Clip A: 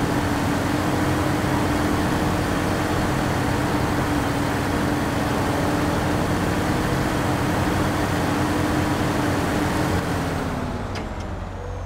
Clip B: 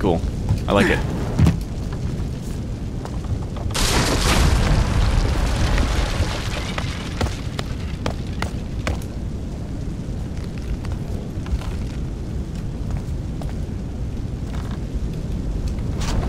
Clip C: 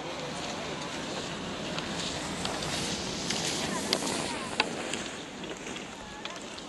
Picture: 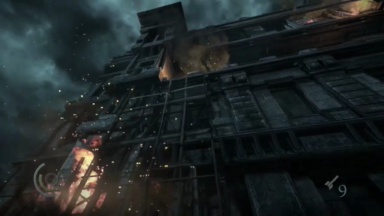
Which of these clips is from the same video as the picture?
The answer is B